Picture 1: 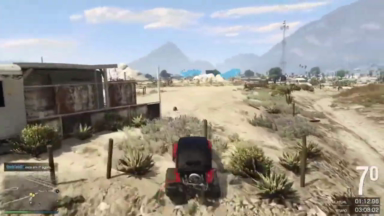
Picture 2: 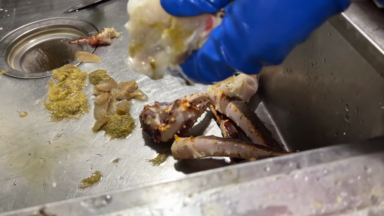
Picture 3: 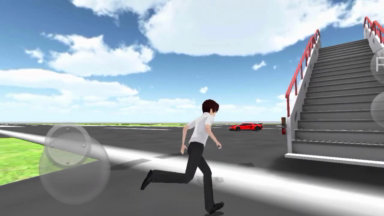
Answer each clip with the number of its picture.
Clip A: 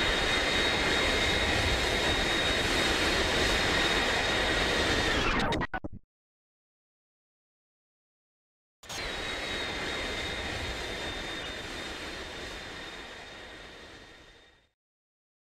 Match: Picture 3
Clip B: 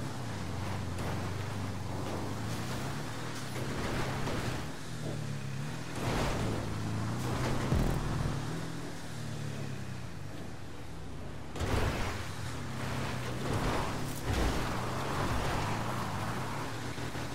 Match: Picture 1